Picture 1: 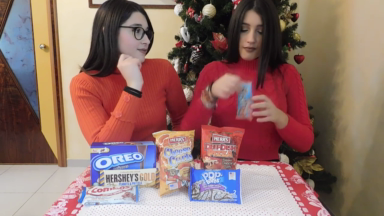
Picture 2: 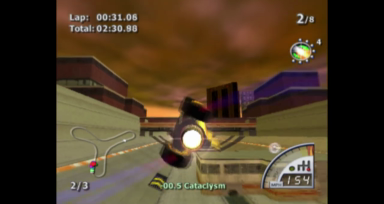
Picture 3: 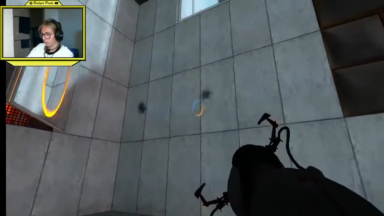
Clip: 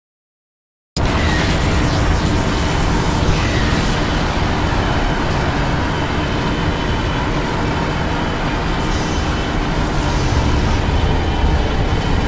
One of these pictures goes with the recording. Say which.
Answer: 2